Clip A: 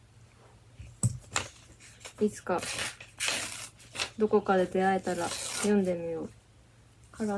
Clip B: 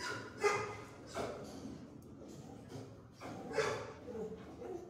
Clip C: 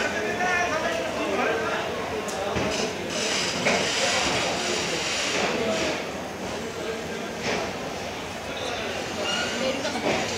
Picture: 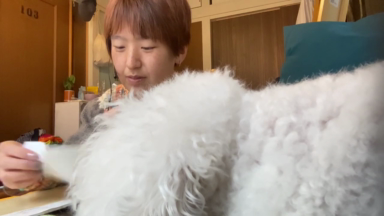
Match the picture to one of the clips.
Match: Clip A